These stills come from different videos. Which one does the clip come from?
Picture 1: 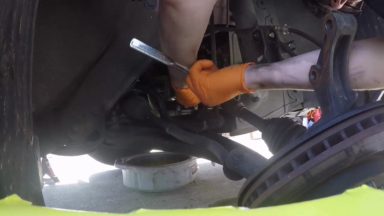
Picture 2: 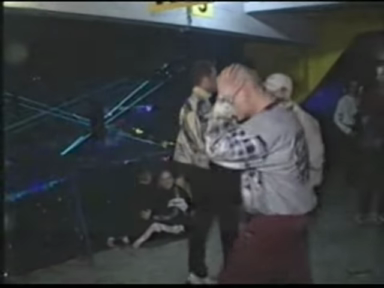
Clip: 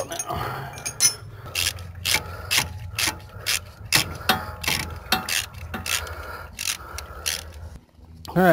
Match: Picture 1